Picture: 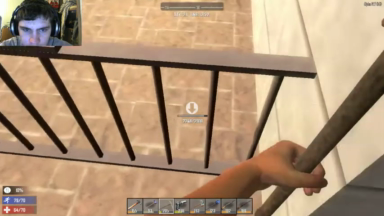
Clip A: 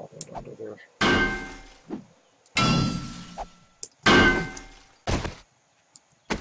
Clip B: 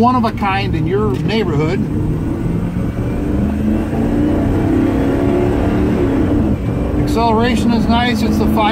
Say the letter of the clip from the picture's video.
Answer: A